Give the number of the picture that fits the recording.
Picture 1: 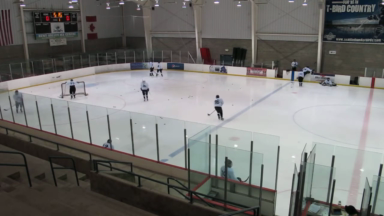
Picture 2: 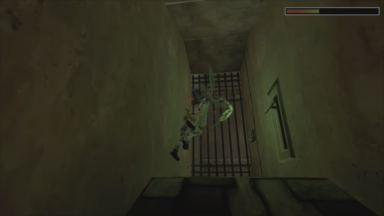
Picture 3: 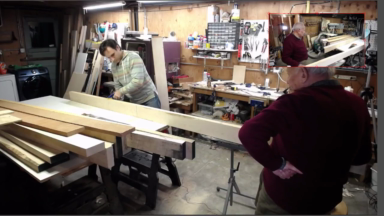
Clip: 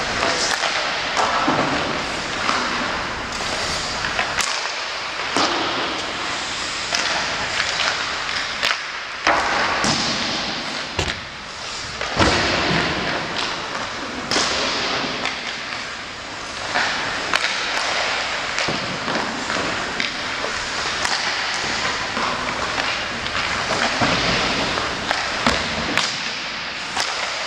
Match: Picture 1